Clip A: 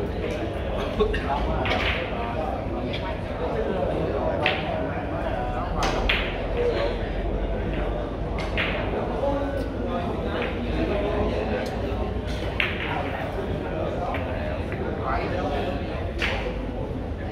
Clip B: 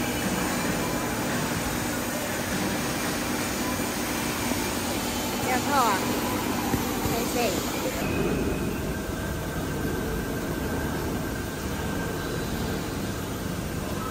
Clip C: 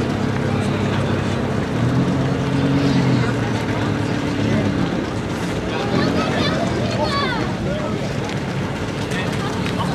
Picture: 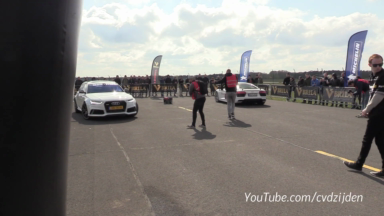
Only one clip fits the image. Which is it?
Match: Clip C